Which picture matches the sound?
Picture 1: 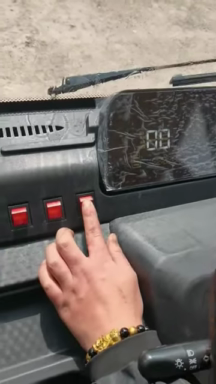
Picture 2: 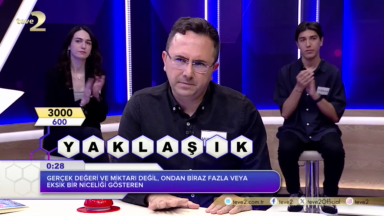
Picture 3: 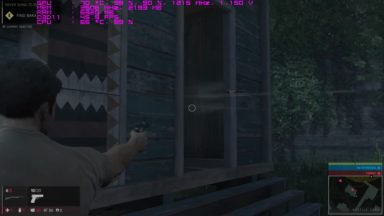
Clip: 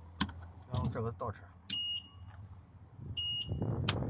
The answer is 1